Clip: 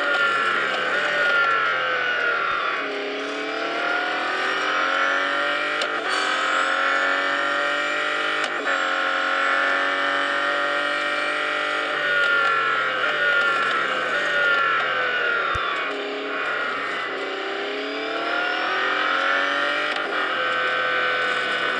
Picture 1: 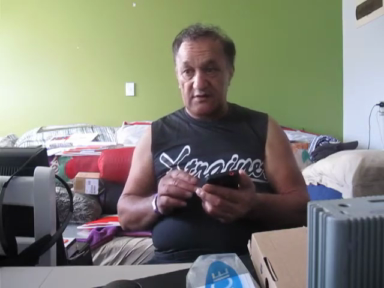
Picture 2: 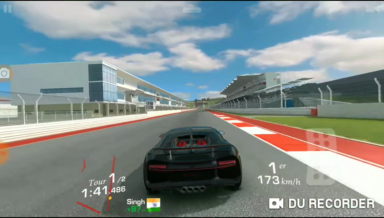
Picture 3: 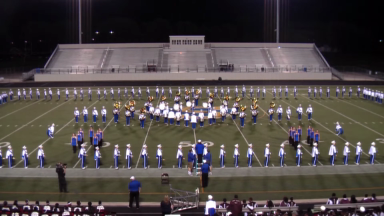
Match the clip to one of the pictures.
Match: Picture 2